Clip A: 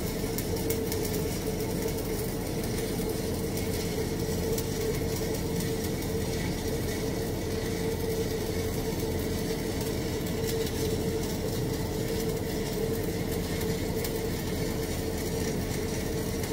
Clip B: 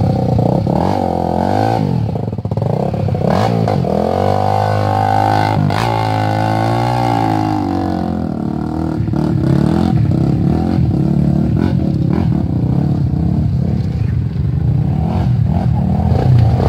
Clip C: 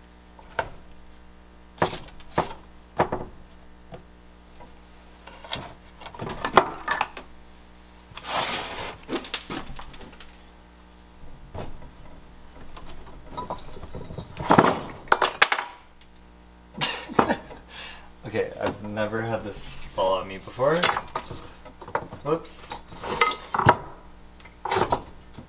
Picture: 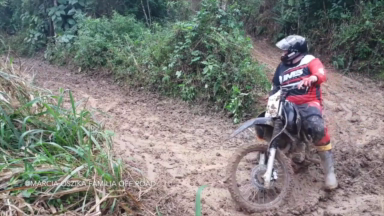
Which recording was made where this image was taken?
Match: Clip B